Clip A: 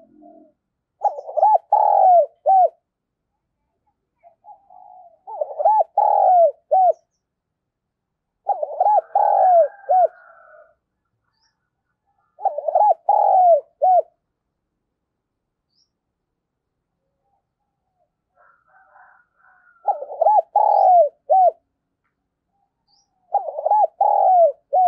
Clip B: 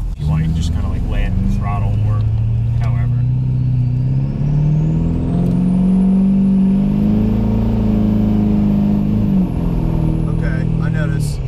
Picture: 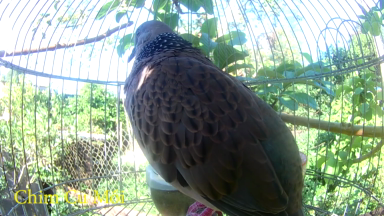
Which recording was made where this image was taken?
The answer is A